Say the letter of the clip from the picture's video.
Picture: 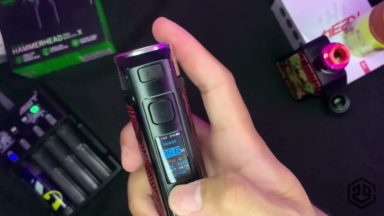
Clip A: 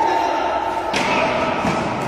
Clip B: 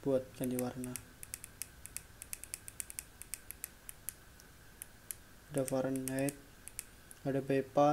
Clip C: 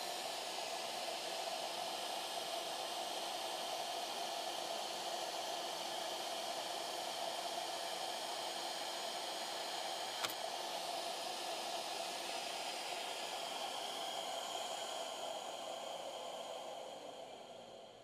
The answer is B